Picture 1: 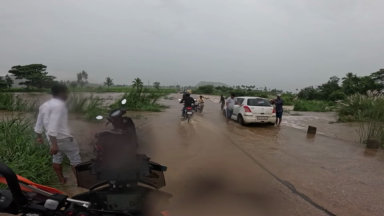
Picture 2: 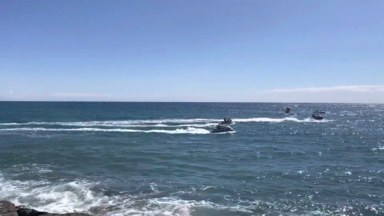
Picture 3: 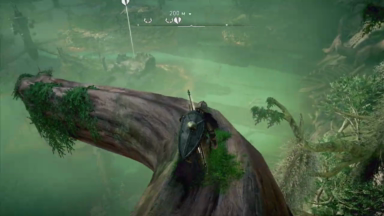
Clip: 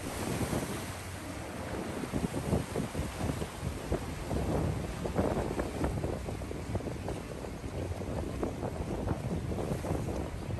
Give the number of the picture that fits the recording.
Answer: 2